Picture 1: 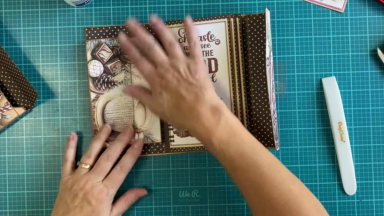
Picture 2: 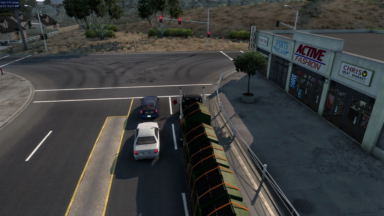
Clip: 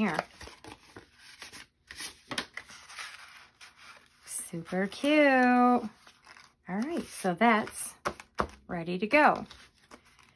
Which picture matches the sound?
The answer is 1